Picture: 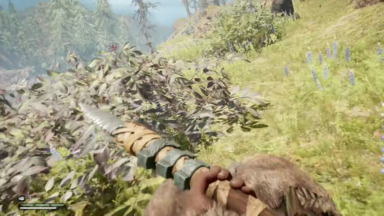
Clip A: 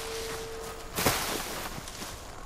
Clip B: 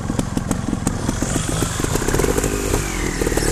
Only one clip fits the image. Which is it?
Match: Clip A